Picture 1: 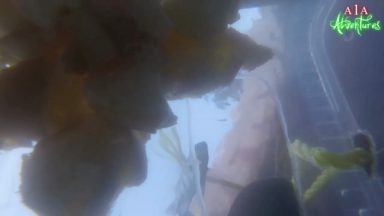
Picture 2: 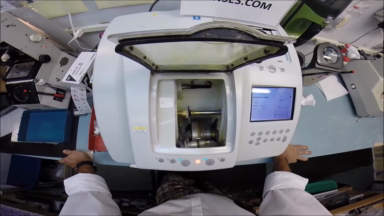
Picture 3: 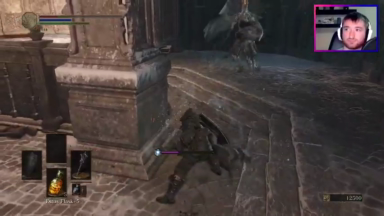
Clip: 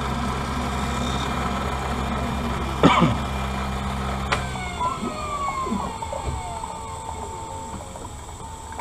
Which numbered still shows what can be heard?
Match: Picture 2